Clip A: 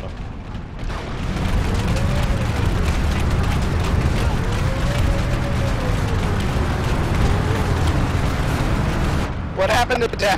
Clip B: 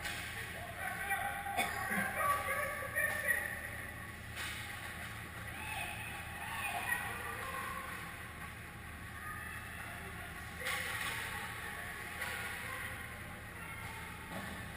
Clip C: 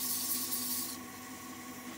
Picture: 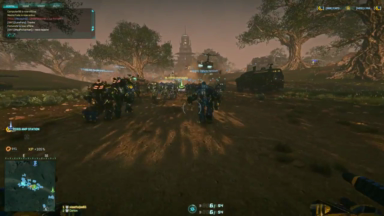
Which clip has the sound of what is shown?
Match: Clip A